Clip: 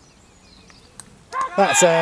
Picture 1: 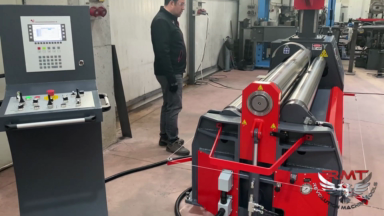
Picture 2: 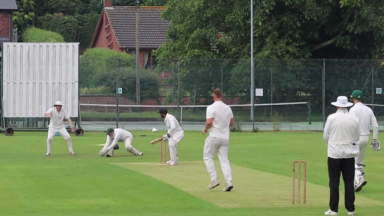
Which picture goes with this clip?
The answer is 2